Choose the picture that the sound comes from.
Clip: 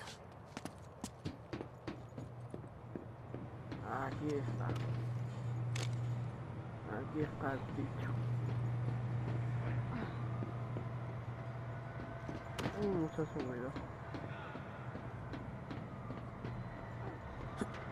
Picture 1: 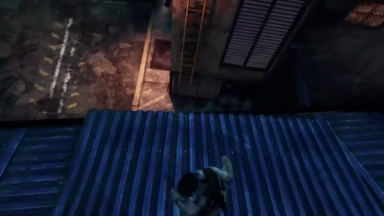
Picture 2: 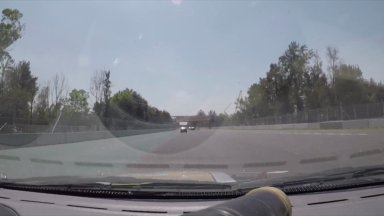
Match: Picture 1